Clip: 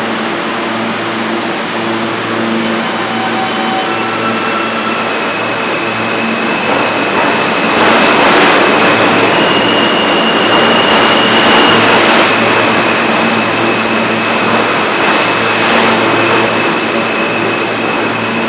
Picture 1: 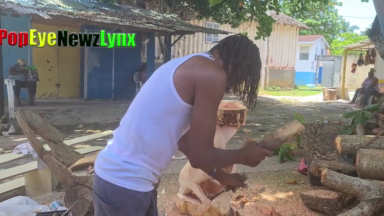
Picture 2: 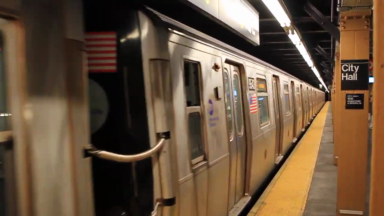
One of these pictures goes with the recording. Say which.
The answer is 2